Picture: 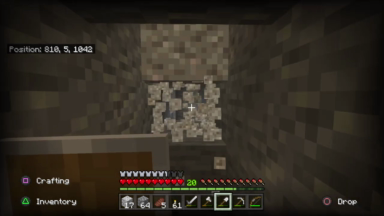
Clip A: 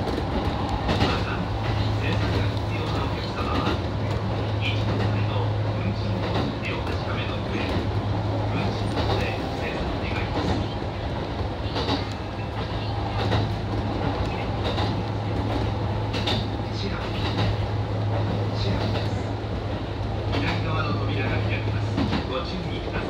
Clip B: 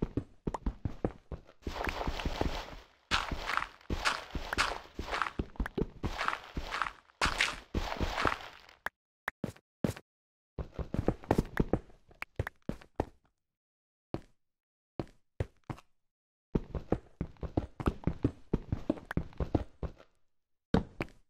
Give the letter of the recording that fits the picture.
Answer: B